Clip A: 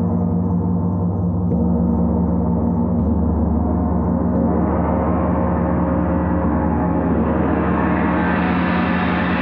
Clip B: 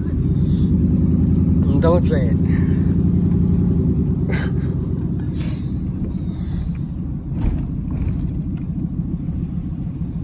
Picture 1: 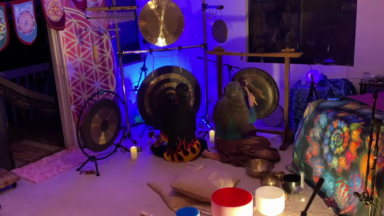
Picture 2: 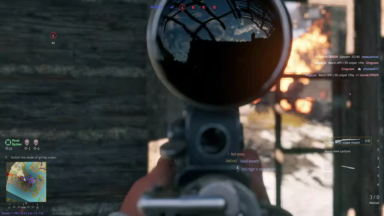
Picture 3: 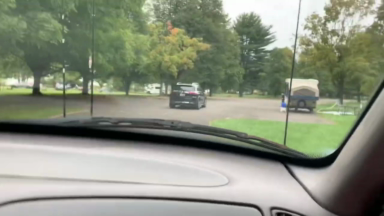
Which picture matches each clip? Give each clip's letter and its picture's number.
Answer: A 1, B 3